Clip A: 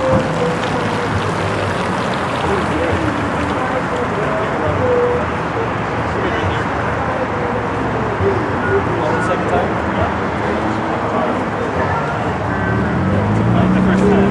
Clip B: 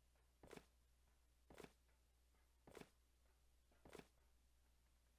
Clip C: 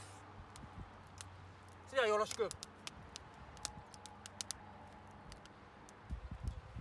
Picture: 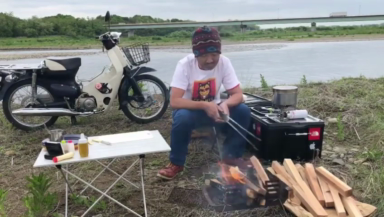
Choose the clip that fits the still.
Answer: C